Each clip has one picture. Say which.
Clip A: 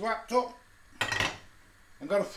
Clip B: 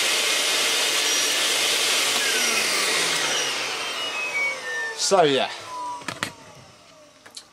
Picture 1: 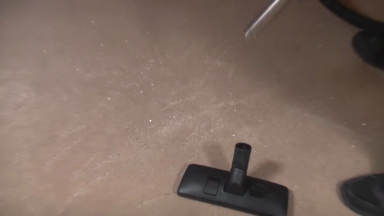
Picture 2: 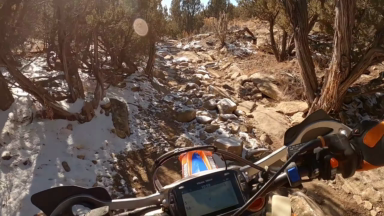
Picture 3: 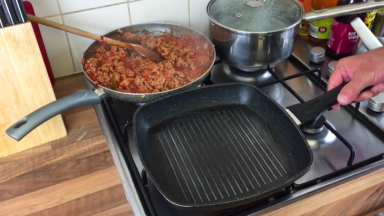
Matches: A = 3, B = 1